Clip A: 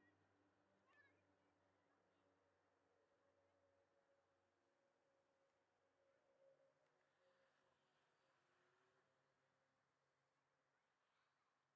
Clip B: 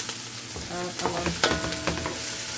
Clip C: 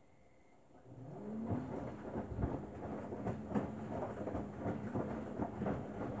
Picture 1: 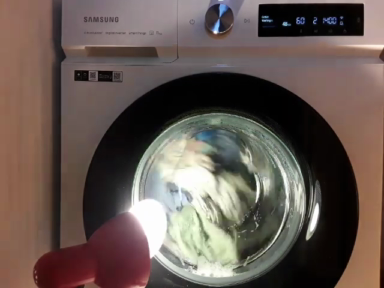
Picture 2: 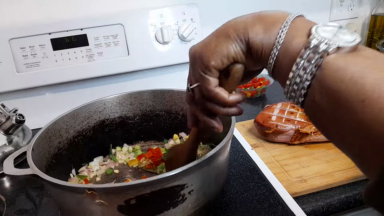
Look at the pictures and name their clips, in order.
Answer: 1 C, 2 B